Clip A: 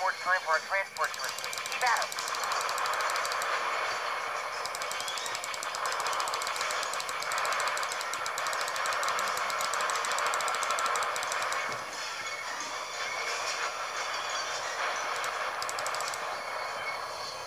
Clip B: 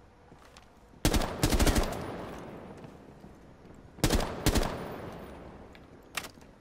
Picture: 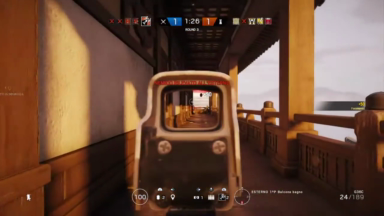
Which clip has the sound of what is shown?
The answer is B